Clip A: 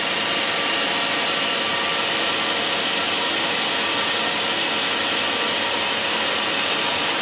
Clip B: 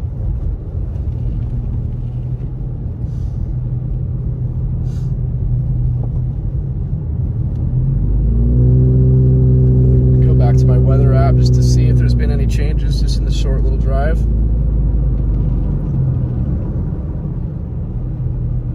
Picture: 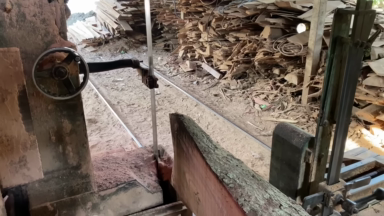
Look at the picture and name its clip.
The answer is A